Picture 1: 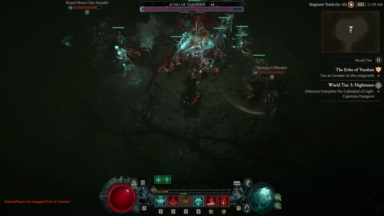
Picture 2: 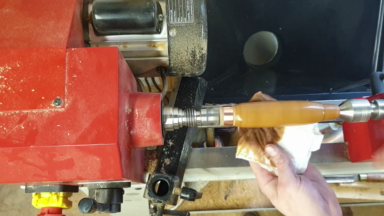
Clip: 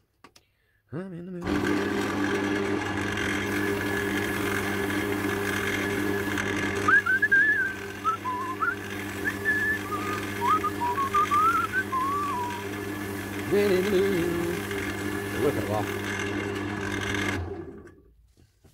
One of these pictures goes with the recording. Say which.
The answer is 2